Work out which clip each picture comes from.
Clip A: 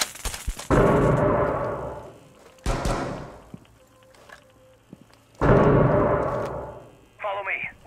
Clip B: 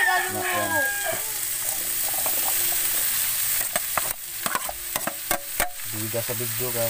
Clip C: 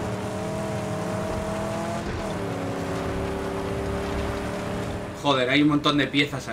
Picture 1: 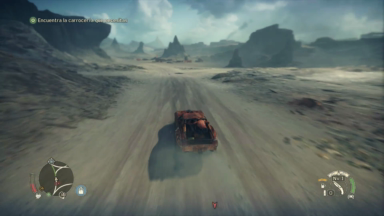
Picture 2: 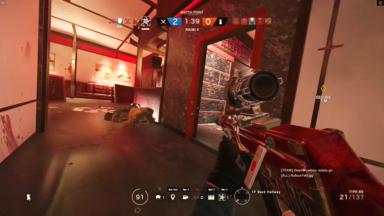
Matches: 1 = C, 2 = A